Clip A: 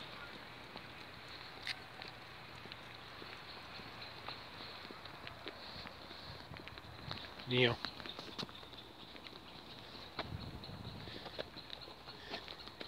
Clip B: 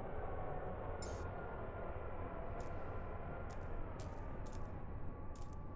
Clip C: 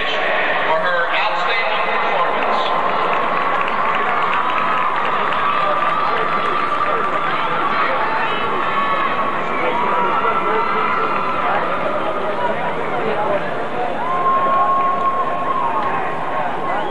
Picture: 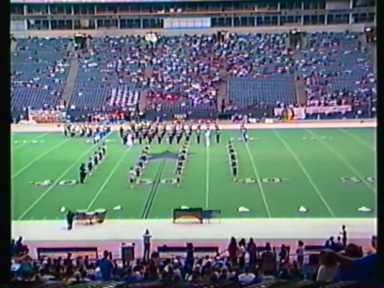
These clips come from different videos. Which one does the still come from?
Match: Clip C